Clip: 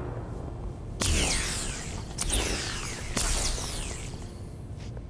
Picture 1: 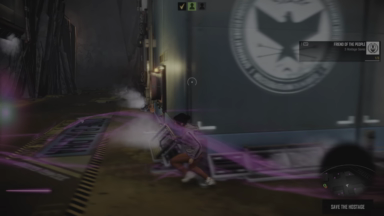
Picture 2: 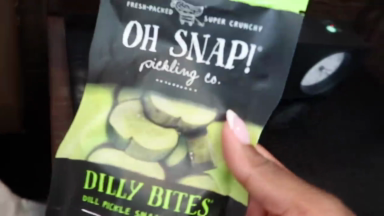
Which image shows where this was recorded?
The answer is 1